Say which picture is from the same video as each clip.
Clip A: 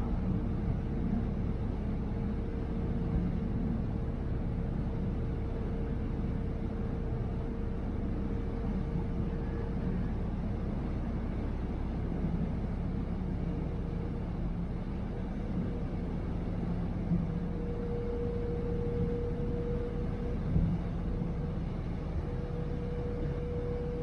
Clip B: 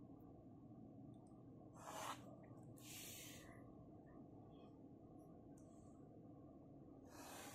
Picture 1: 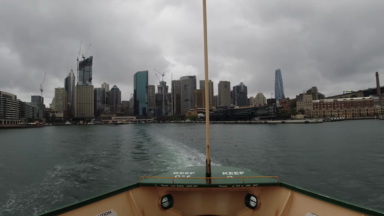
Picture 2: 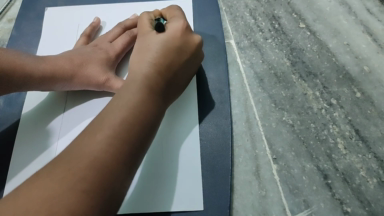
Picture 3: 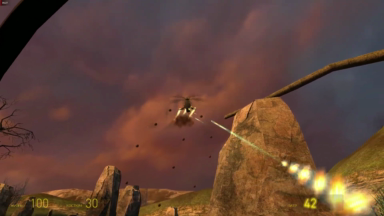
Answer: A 1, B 2